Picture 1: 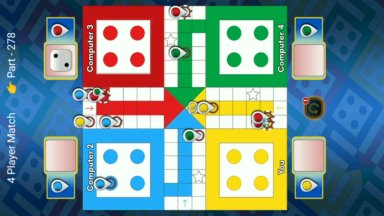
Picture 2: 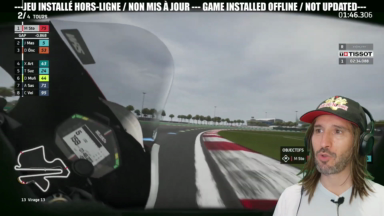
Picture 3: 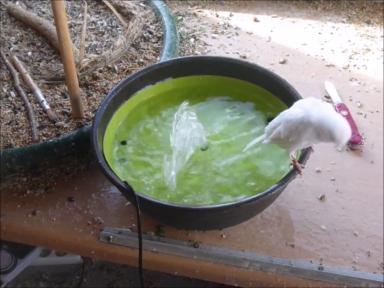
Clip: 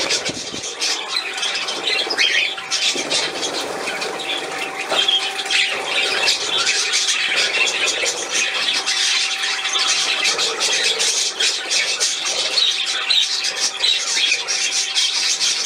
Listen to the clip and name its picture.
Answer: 3